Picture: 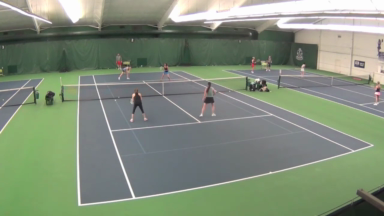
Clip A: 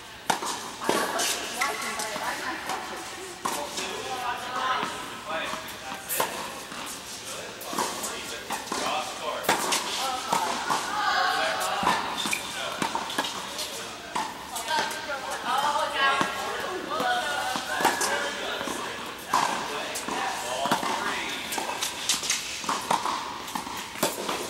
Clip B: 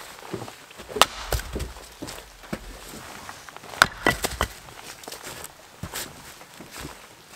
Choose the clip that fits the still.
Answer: A